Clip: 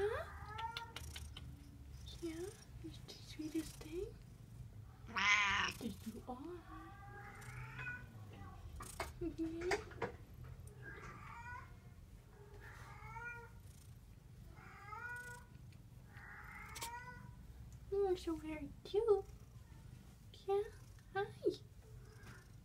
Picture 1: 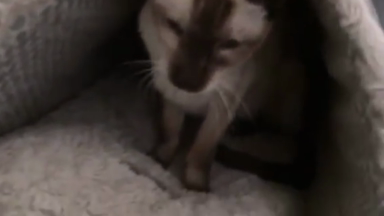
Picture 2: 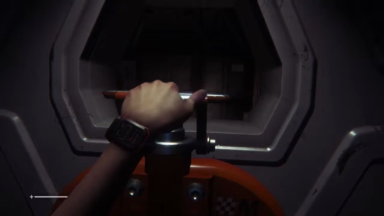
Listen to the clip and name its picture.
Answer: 1